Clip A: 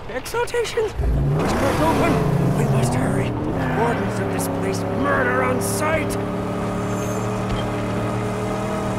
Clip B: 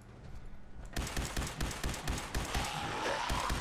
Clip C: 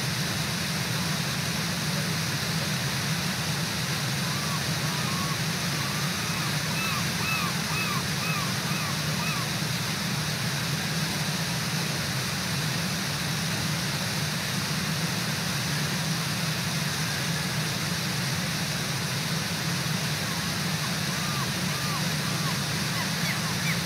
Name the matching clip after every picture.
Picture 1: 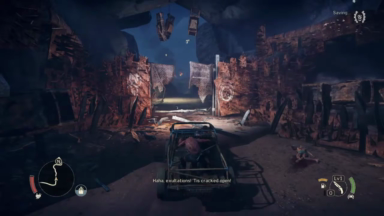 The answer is A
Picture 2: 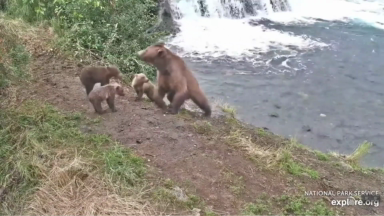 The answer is C